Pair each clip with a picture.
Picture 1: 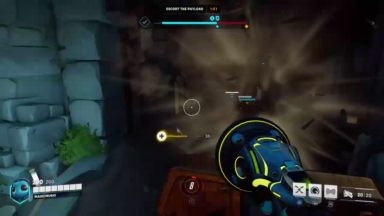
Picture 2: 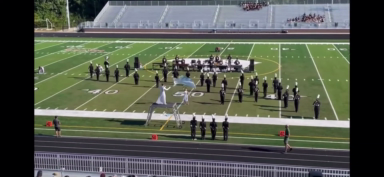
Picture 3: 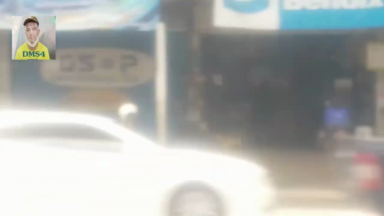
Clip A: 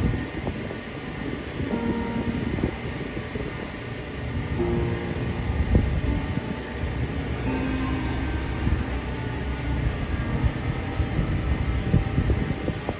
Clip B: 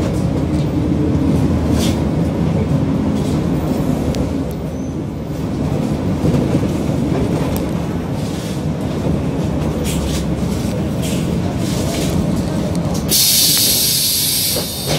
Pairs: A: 2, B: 3